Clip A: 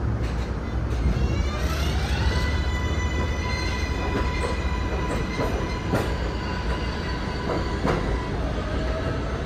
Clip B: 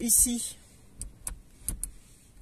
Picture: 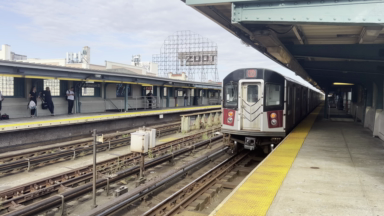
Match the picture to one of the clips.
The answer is A